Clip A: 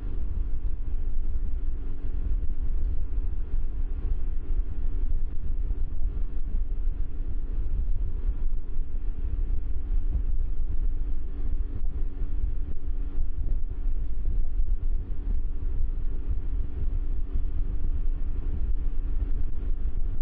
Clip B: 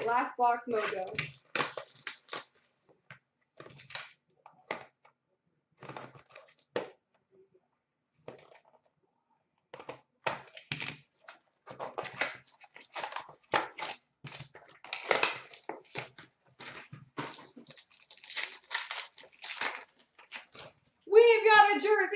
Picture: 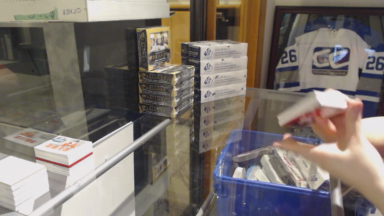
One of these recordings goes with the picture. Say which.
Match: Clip B